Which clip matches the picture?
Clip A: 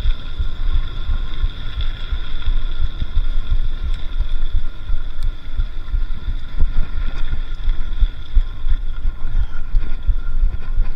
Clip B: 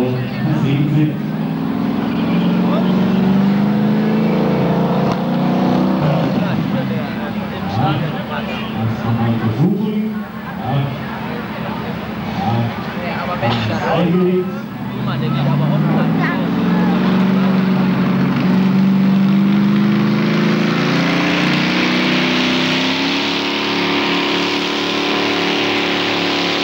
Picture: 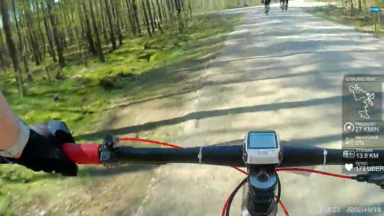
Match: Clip A